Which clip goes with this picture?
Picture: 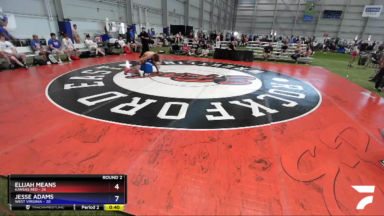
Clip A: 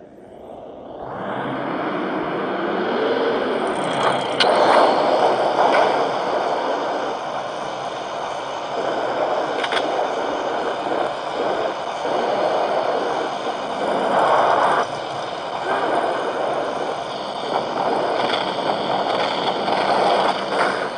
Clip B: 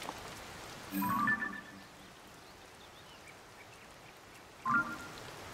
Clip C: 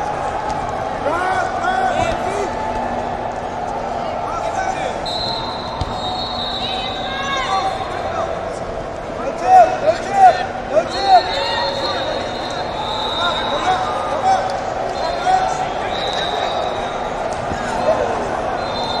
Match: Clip C